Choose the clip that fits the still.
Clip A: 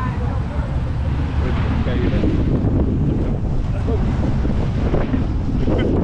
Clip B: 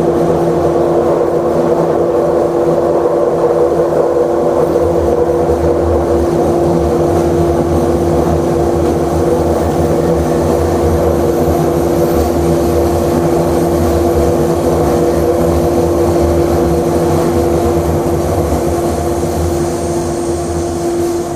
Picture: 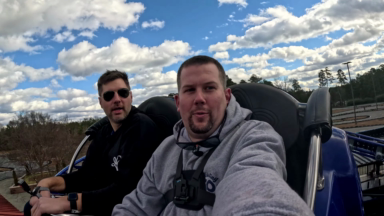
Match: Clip A